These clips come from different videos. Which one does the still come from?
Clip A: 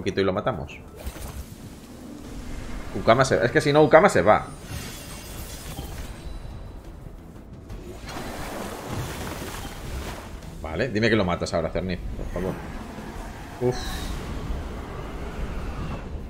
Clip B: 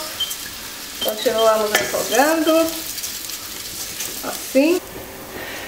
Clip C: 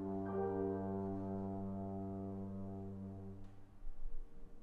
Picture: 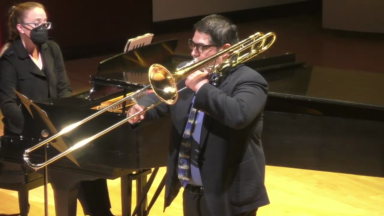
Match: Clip C